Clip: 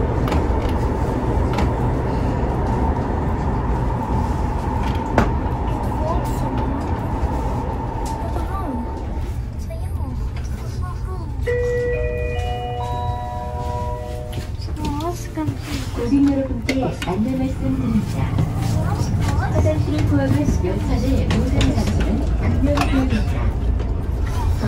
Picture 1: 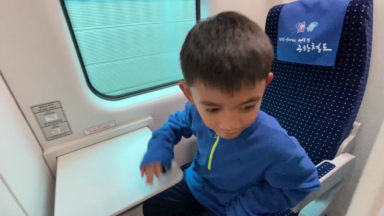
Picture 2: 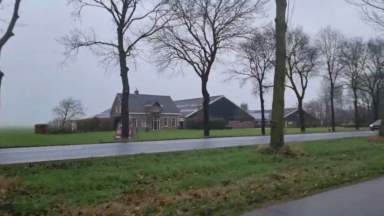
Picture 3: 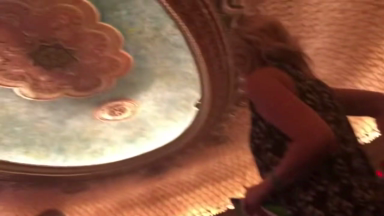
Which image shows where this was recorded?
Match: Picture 1